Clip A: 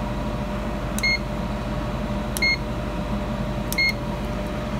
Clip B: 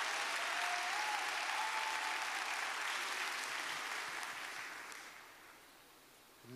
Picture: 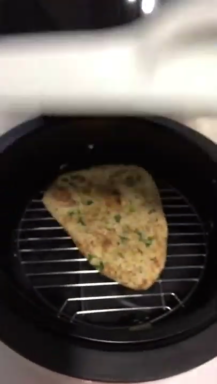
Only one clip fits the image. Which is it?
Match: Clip A